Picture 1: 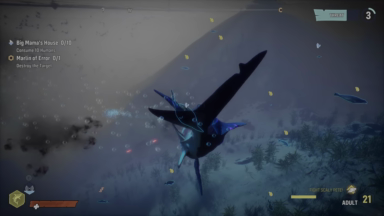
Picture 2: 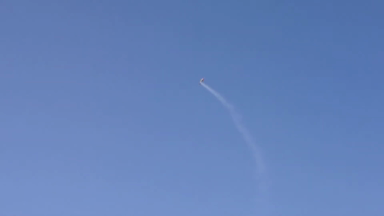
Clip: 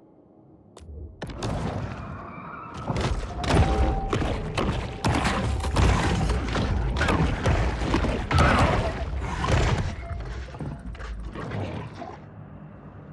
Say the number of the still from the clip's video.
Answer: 1